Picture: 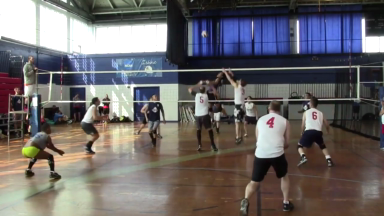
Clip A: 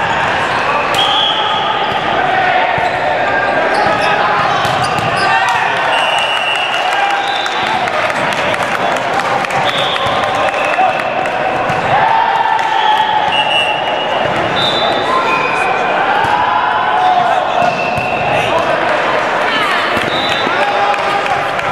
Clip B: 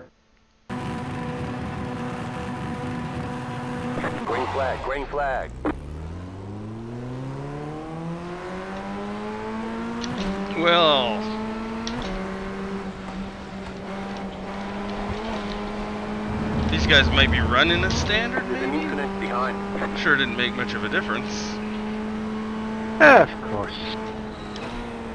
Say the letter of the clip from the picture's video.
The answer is A